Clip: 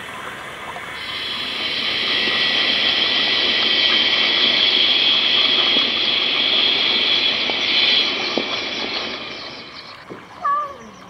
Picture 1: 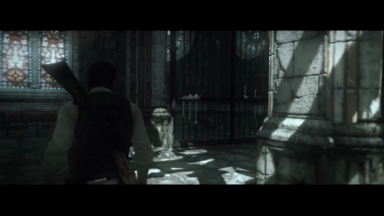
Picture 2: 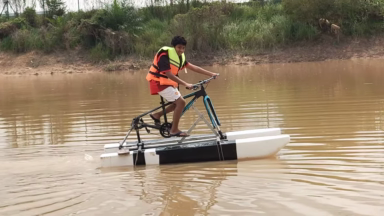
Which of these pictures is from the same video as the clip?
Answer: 2